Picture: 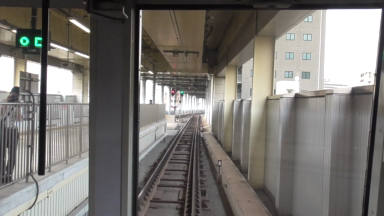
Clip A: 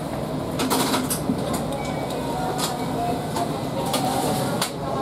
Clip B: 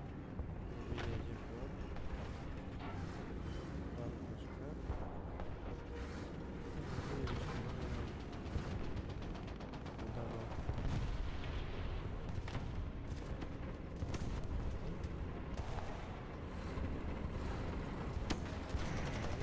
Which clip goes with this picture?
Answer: A